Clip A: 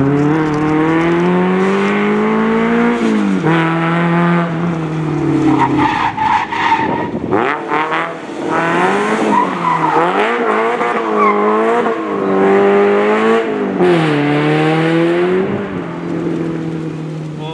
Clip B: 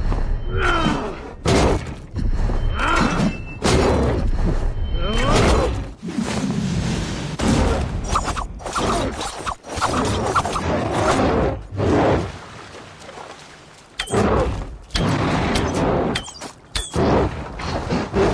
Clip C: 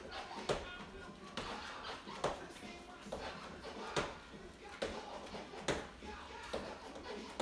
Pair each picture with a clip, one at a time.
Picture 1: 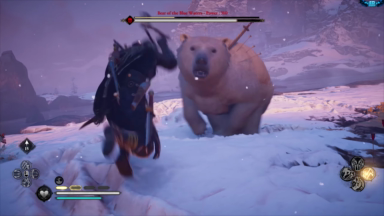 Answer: B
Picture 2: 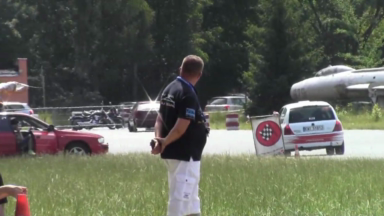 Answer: A